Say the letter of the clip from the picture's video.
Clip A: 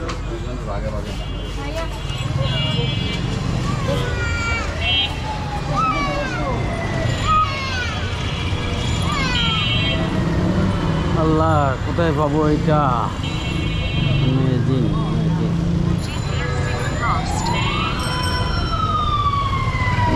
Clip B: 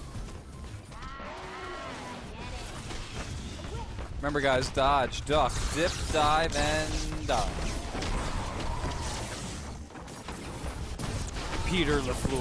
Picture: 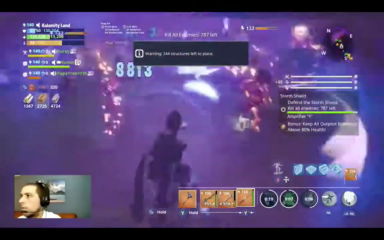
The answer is B